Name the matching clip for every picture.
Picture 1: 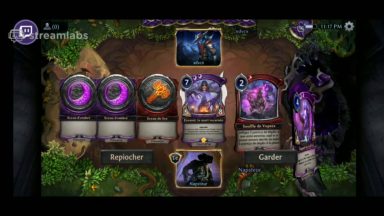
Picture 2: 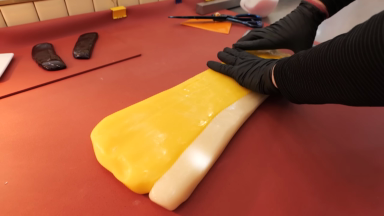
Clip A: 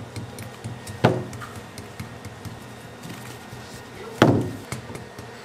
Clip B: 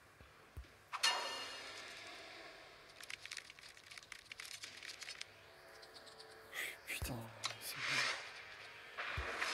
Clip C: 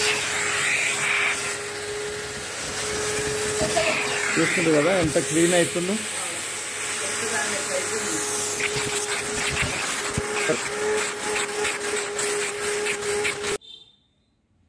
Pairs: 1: B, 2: A